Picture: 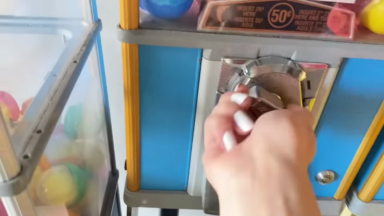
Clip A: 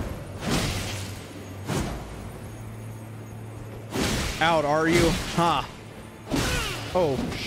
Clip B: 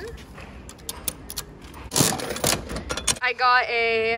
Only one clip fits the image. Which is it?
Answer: B